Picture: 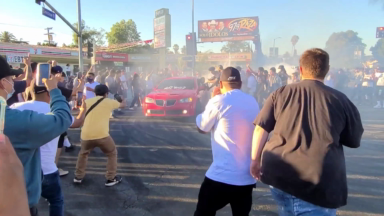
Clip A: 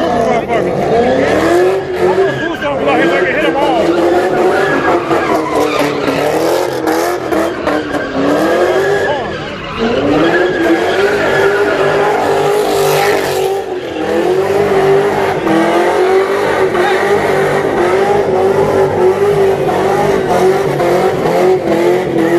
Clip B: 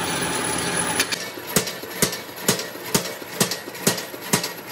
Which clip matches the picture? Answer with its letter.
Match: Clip A